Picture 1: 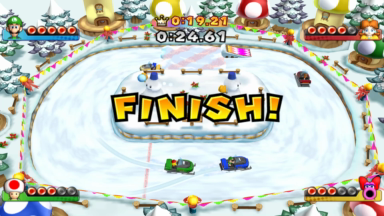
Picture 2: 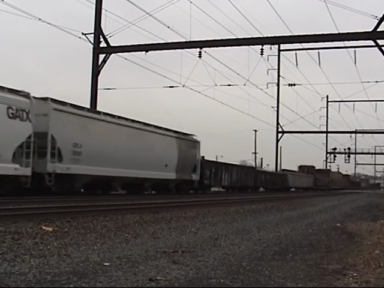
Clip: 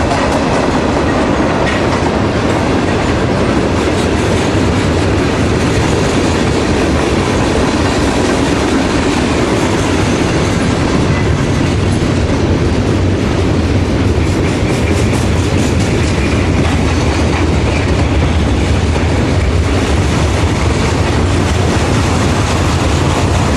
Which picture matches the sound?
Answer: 2